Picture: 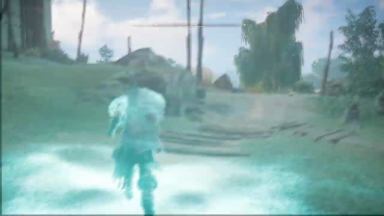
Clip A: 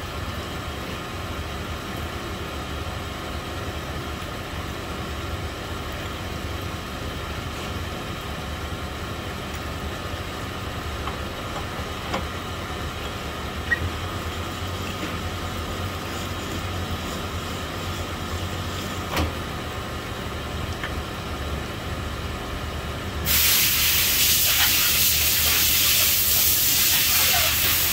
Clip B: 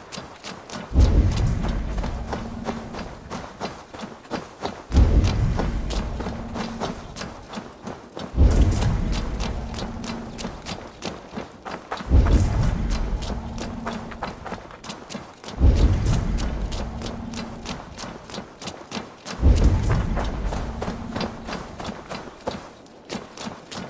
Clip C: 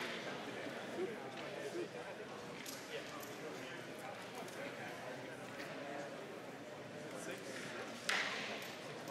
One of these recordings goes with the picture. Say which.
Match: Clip B